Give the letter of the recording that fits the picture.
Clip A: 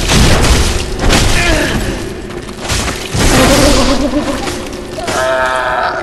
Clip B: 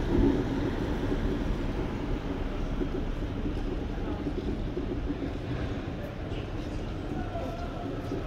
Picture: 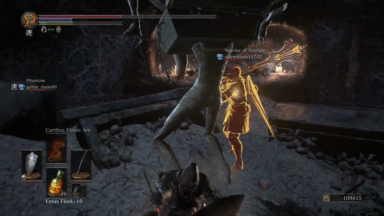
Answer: A